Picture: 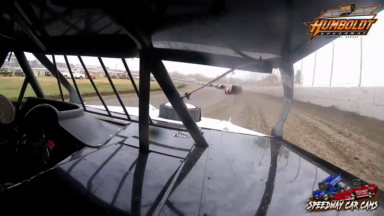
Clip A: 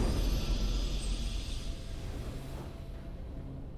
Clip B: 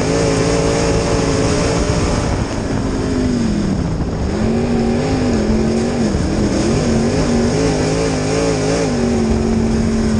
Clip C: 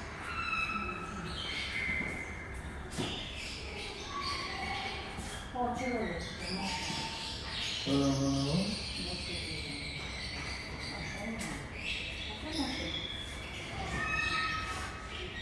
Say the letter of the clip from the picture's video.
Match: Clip B